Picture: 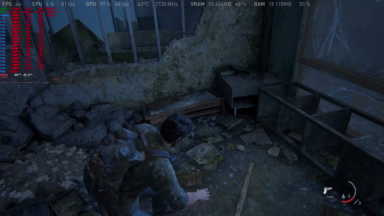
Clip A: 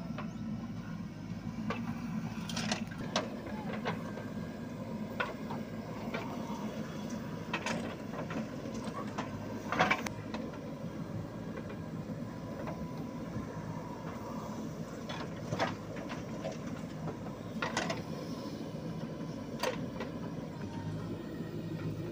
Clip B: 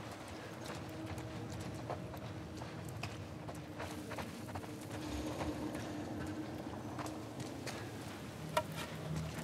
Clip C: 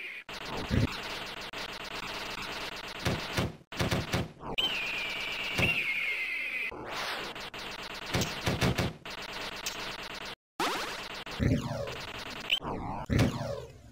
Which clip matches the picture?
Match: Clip B